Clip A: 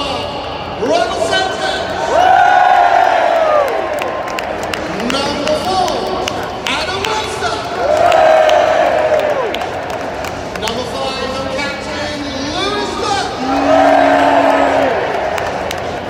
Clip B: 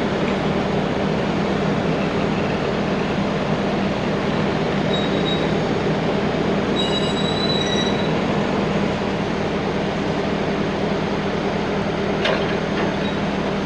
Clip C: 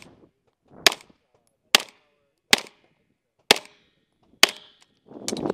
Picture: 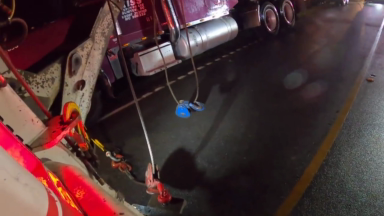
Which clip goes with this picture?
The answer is B